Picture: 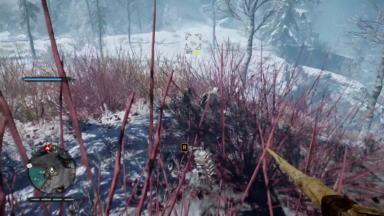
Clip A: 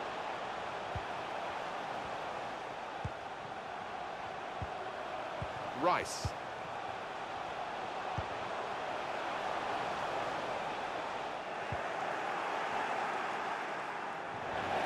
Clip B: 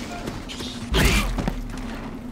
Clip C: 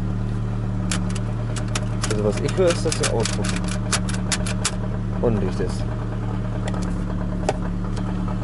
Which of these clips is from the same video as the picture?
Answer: B